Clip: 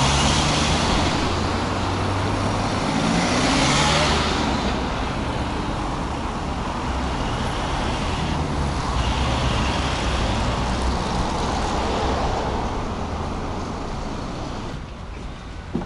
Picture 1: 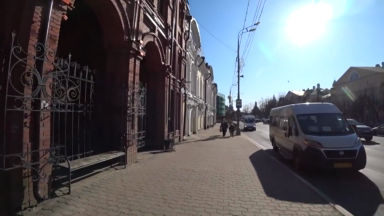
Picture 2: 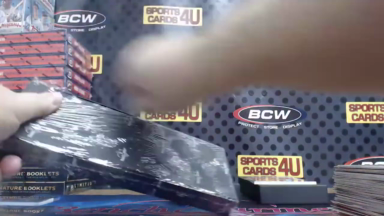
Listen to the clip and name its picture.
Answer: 1